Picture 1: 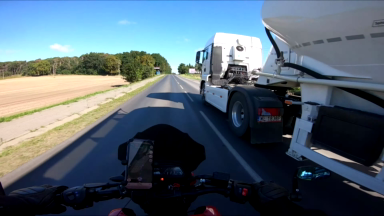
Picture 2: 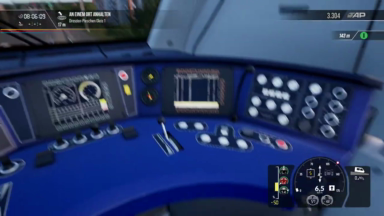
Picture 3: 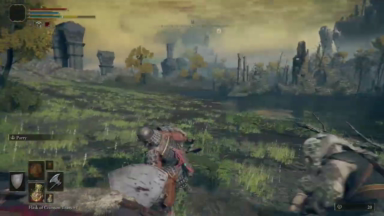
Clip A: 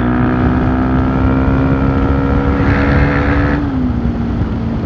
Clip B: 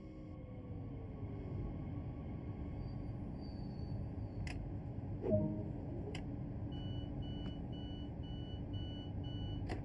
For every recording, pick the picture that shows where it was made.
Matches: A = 1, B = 2